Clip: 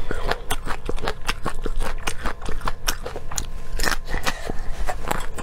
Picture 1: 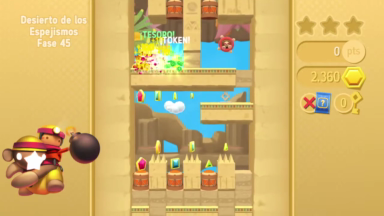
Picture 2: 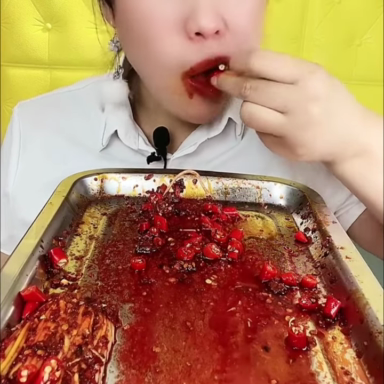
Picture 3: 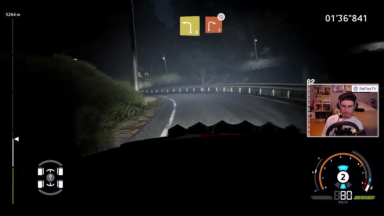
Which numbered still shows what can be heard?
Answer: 2